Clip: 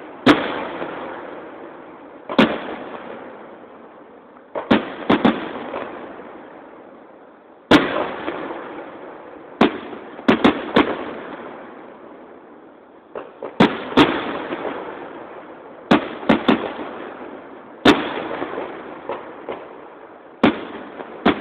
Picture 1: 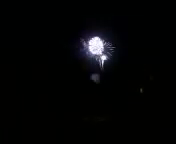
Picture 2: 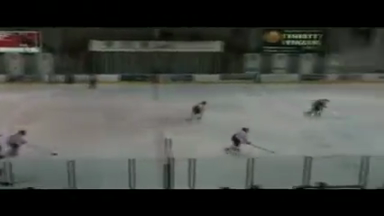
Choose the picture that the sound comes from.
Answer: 1